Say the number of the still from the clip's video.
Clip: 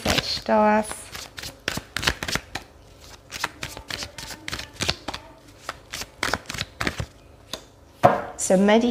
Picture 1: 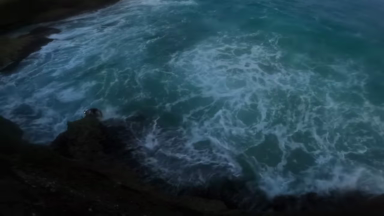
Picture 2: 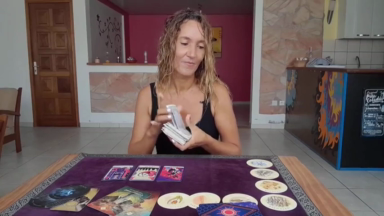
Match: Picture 2